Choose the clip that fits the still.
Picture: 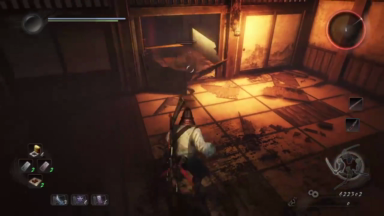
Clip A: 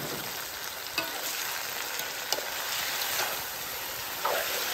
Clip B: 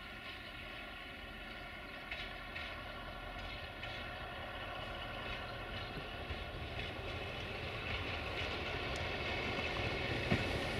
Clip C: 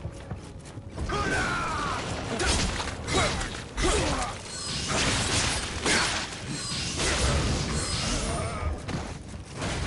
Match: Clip C